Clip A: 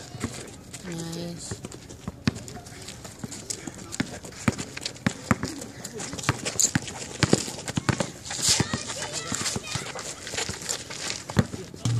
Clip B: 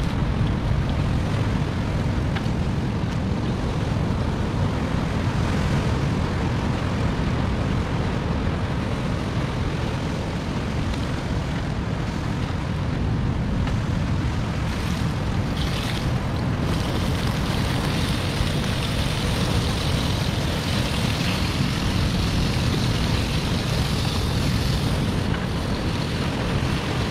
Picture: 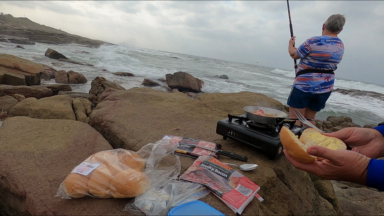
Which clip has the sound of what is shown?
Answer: B